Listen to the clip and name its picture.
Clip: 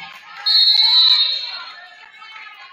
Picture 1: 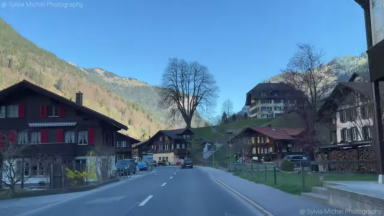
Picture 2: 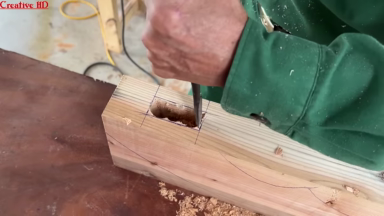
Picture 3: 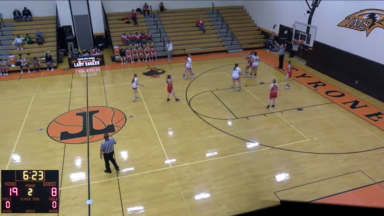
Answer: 3